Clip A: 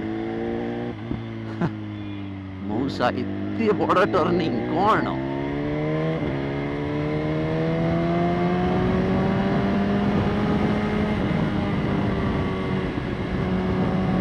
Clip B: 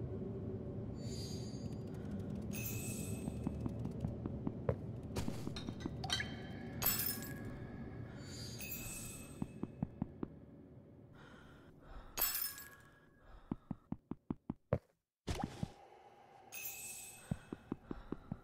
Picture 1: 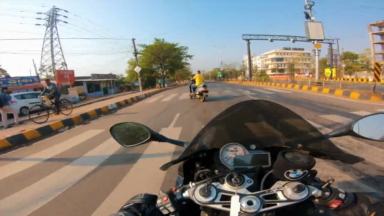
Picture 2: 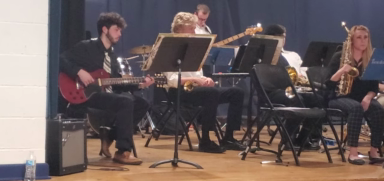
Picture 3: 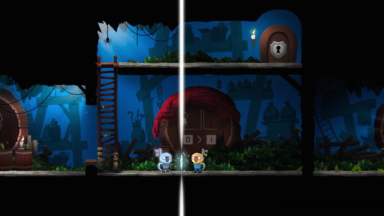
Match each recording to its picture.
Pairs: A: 1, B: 3